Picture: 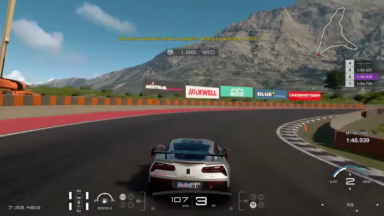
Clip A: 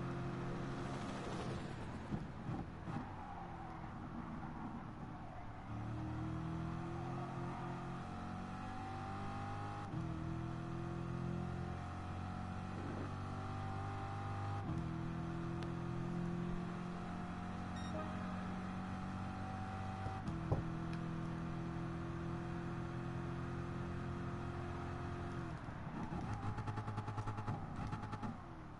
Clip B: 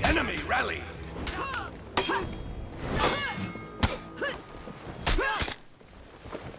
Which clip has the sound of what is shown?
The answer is A